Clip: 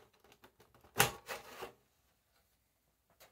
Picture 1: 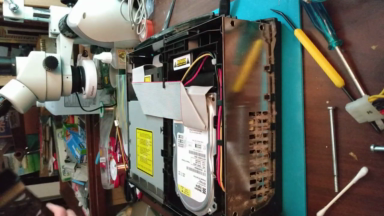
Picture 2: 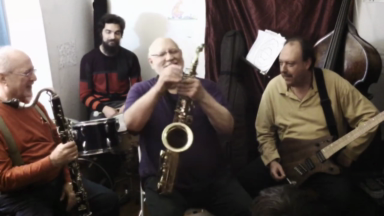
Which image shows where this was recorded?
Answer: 1